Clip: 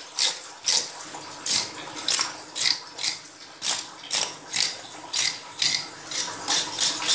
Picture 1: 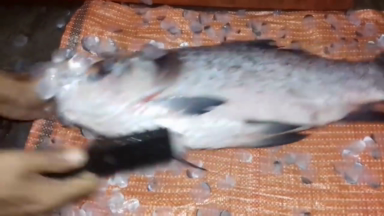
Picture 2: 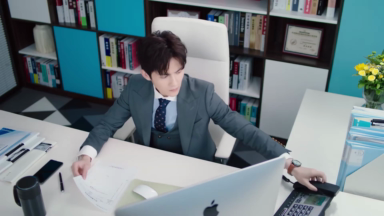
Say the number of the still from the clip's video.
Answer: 1